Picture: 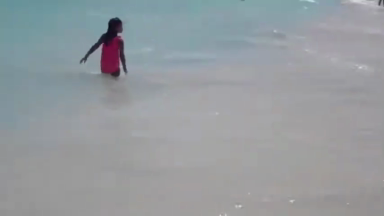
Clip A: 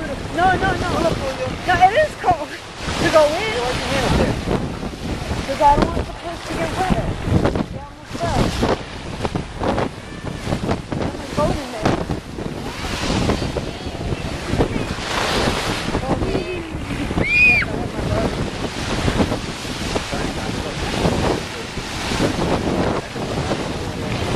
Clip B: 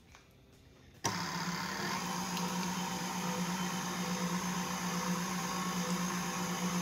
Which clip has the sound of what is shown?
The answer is A